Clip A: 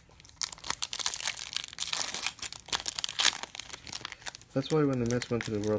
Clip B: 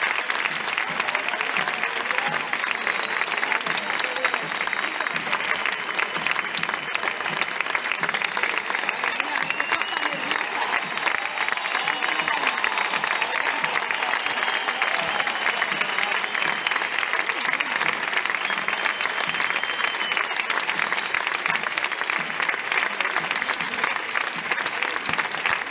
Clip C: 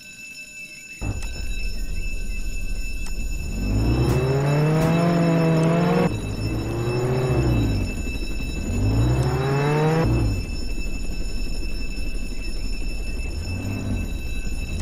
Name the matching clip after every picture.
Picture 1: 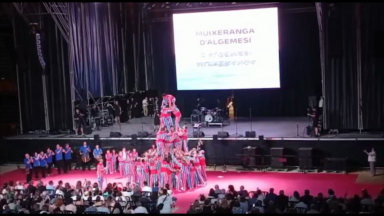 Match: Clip B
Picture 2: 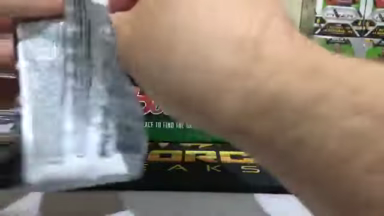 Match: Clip A